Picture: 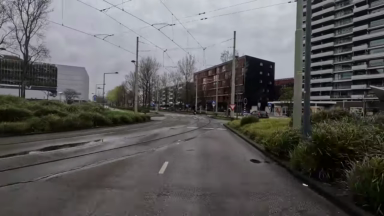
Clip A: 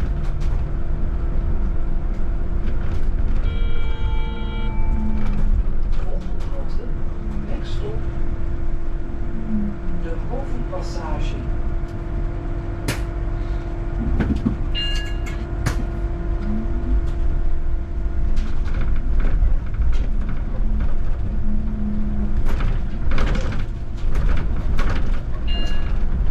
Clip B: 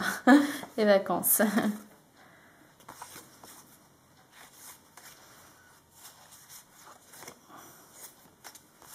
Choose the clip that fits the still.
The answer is A